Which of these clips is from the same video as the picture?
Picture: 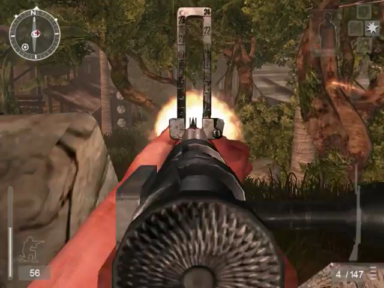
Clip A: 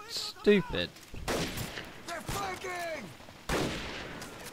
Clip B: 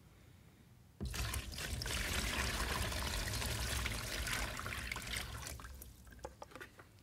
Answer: A